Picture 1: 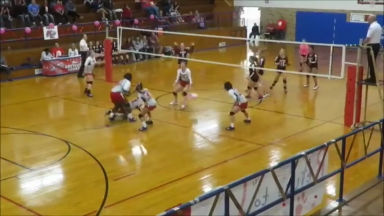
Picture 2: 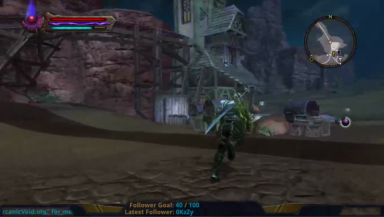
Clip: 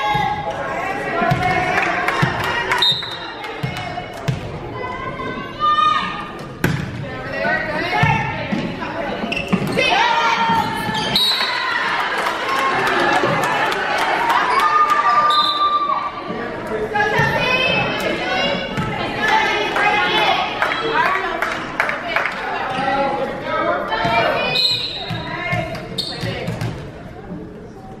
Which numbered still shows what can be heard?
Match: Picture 1